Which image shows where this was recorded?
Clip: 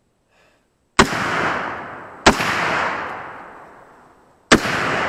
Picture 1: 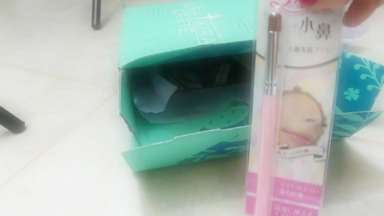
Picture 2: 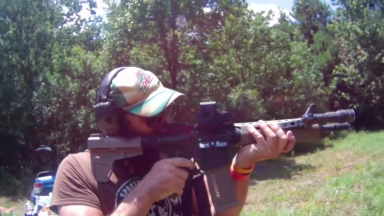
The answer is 2